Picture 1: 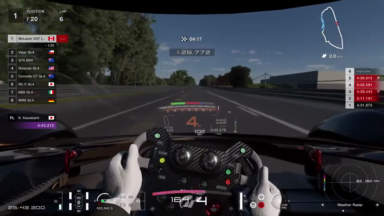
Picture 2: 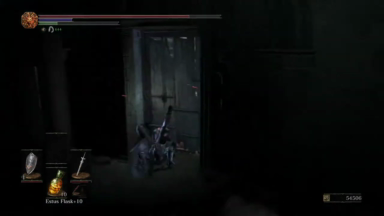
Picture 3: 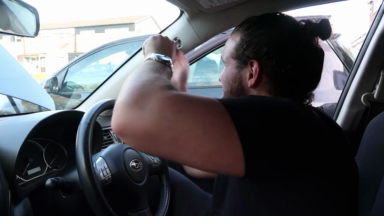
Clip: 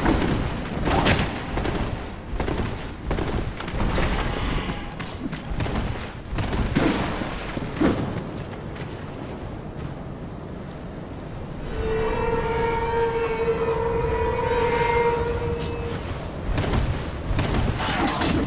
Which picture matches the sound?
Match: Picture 2